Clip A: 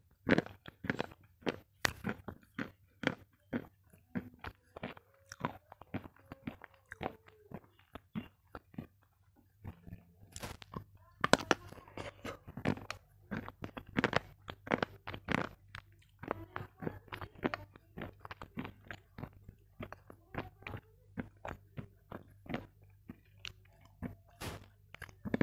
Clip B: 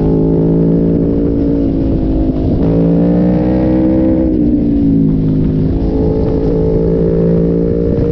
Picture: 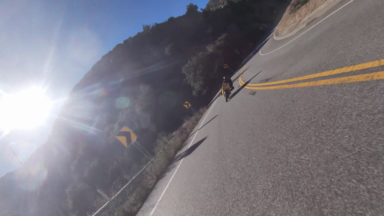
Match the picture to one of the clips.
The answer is B